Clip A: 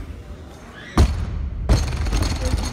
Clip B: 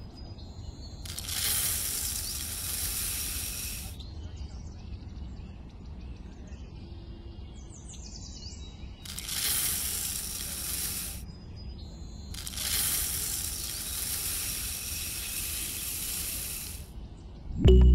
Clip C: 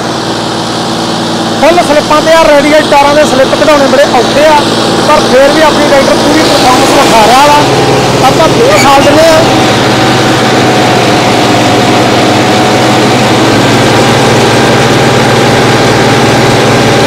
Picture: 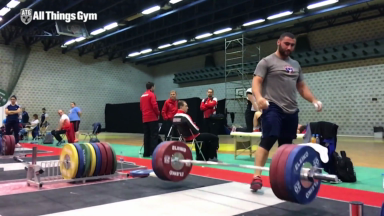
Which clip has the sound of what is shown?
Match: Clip A